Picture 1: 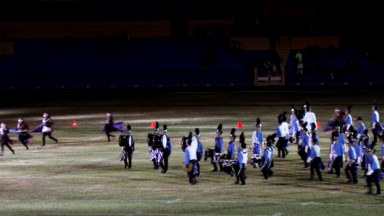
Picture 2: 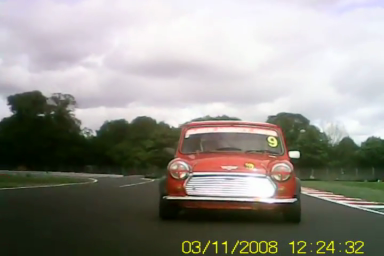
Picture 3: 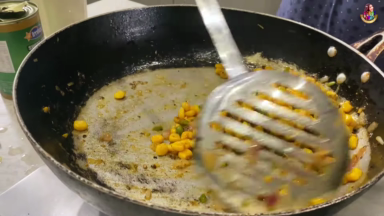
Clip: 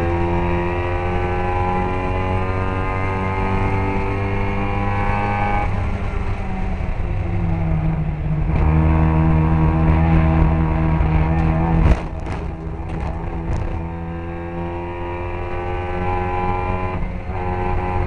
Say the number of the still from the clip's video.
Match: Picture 2